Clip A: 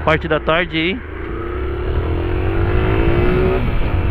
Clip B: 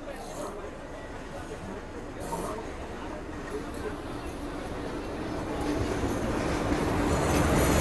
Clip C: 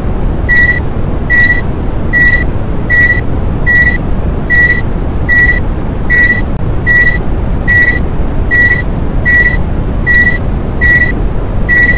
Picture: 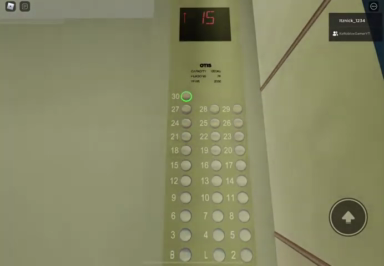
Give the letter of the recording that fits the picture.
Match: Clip C